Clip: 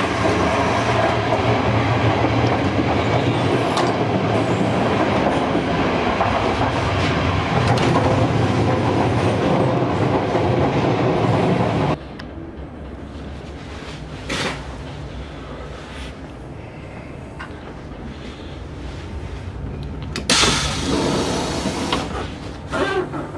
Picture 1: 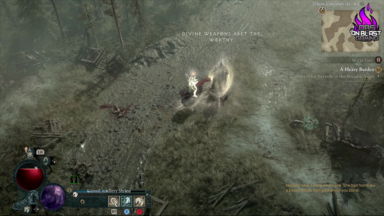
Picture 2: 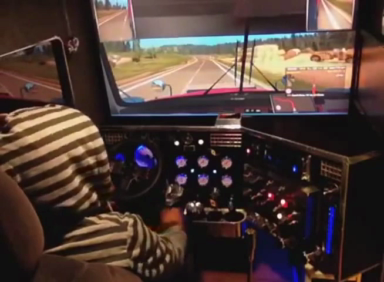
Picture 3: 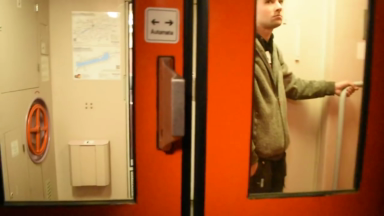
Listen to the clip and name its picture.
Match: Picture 3